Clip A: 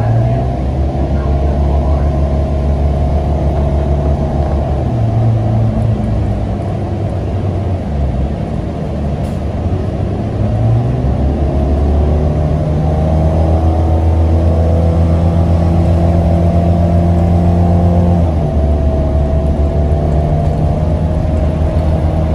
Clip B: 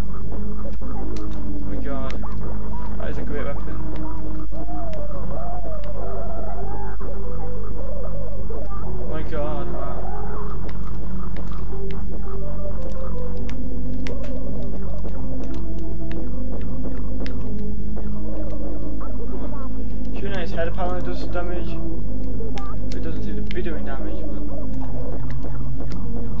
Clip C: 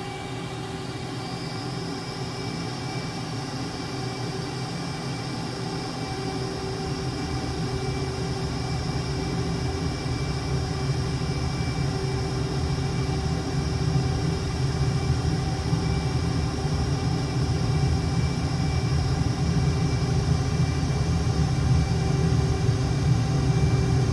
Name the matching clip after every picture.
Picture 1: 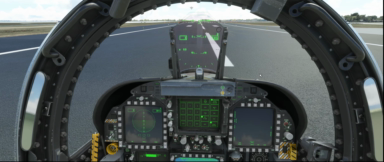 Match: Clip C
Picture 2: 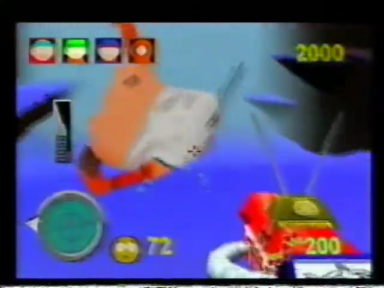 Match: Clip B